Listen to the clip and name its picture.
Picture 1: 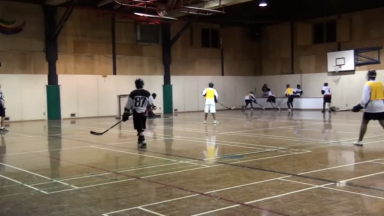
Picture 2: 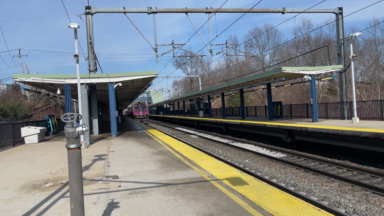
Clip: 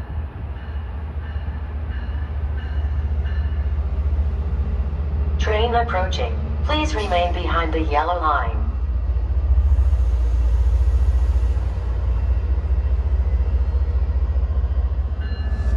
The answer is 2